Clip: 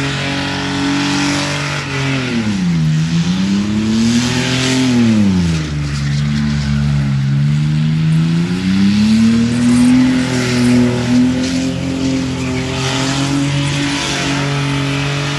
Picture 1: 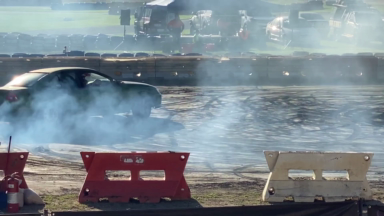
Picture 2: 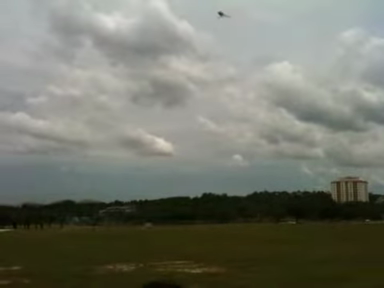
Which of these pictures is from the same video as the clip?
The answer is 1